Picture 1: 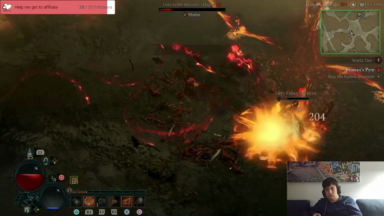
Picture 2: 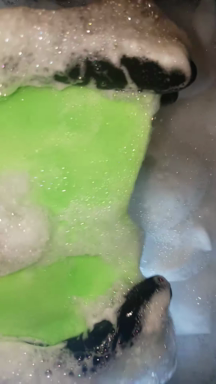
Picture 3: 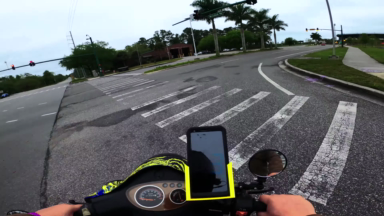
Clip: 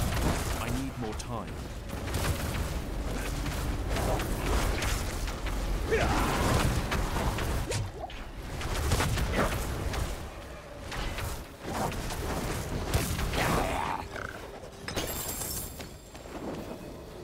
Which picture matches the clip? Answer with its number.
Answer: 1